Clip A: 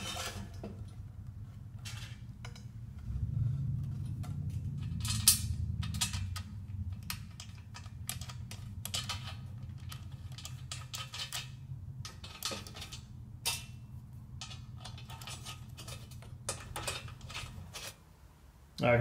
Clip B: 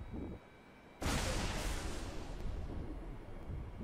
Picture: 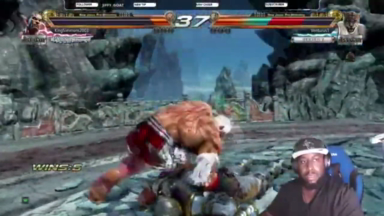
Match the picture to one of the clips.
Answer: B